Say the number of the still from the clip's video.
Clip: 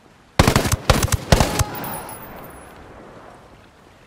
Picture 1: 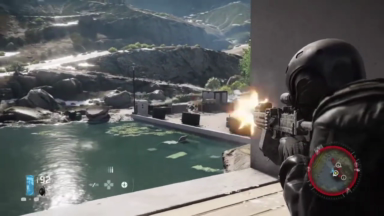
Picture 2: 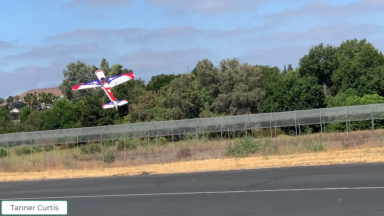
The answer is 1